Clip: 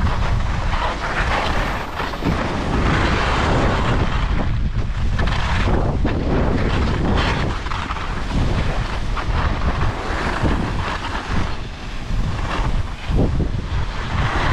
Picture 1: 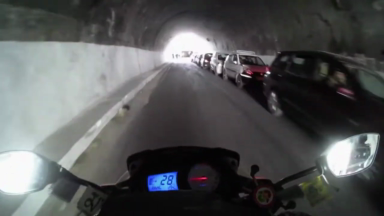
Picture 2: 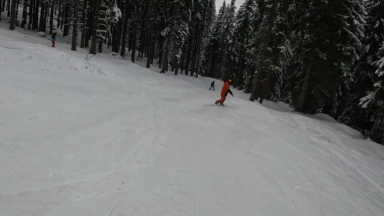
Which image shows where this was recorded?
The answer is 2